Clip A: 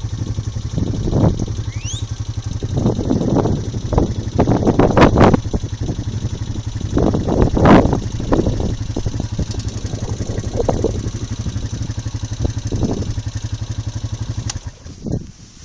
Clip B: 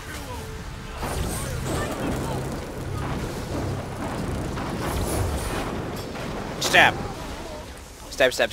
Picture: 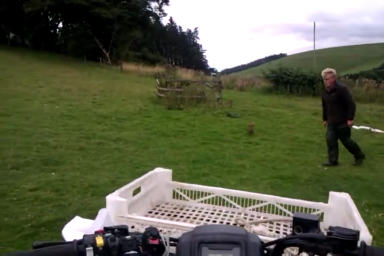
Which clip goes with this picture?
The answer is A